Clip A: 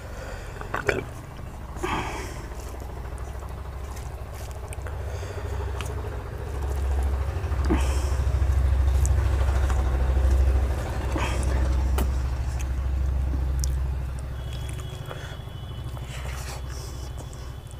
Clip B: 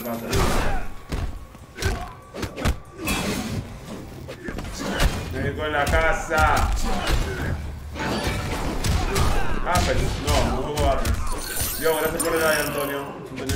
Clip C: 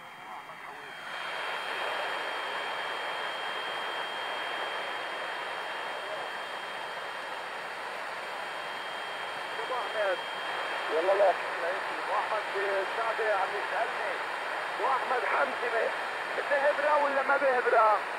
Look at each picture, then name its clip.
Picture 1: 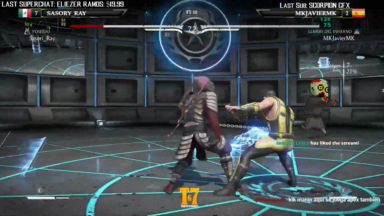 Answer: B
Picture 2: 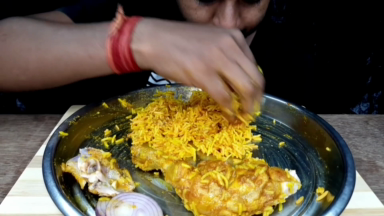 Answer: A